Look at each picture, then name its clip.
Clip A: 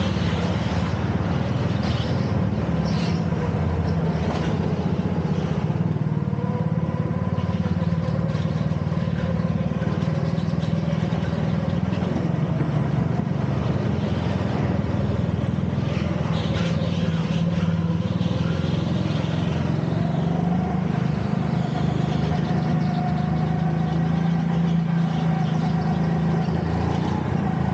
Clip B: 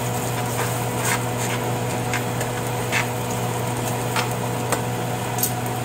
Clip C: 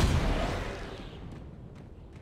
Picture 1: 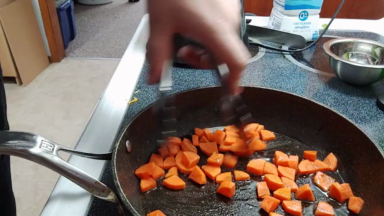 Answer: B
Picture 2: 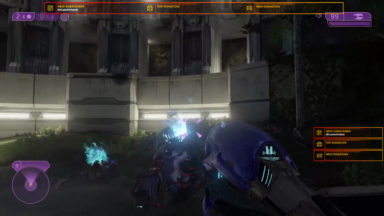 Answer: C